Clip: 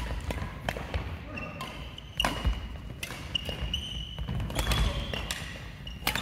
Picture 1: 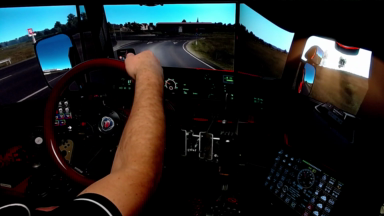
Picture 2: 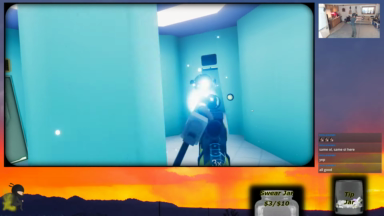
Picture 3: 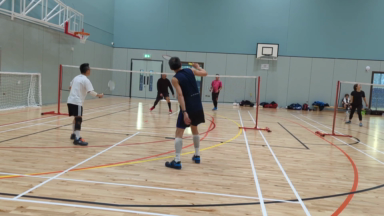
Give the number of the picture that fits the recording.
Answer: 3